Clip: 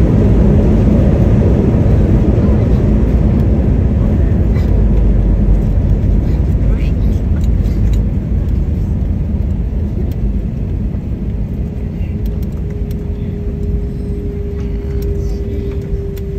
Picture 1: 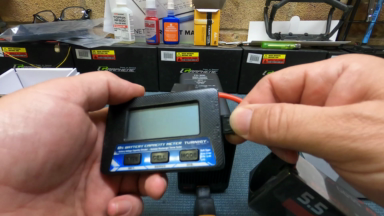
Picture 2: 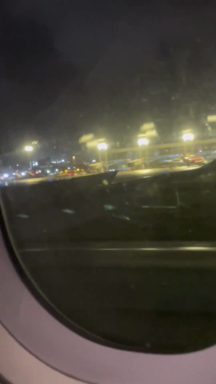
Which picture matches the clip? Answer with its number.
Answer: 2